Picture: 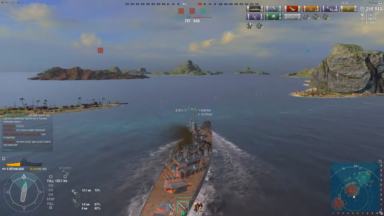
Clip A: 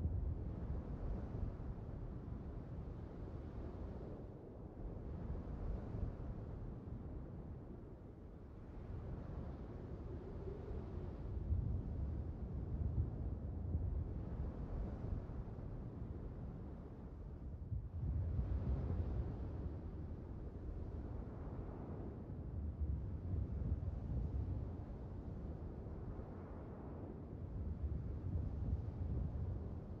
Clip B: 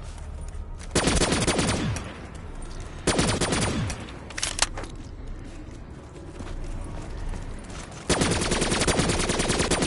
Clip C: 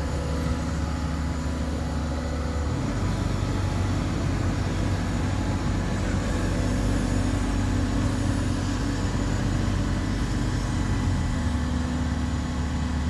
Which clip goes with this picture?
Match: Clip A